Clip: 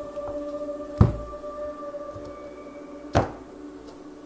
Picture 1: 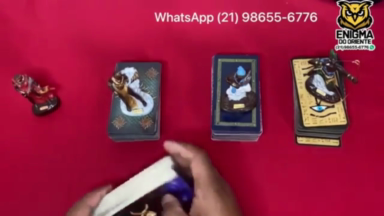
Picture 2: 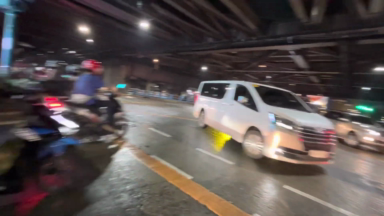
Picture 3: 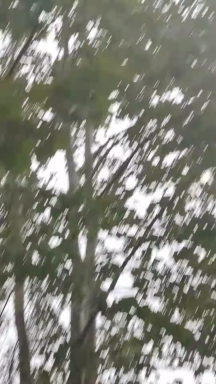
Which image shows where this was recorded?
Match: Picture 1